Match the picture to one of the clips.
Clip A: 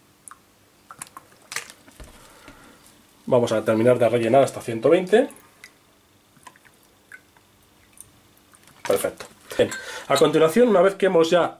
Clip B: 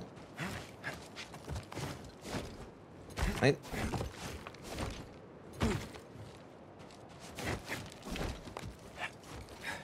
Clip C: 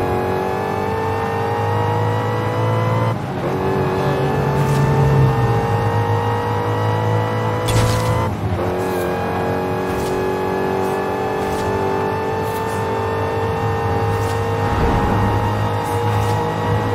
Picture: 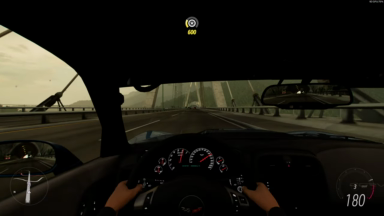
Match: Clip C